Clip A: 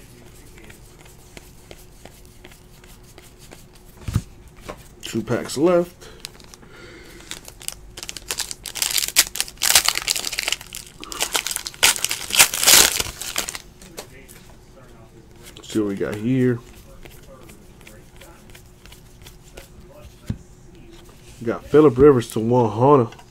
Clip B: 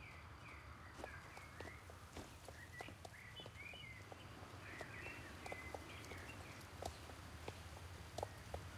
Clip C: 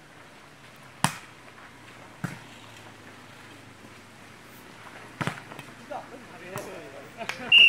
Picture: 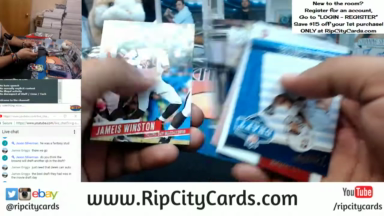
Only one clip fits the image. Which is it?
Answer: A